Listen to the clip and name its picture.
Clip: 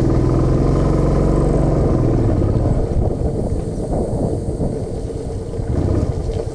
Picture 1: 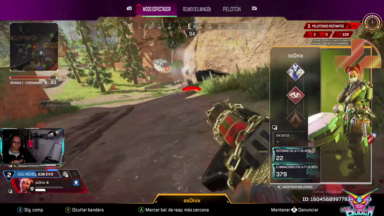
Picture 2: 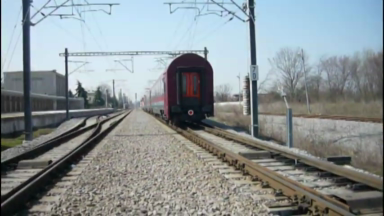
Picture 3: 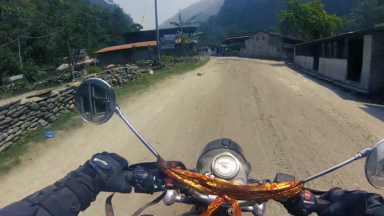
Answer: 3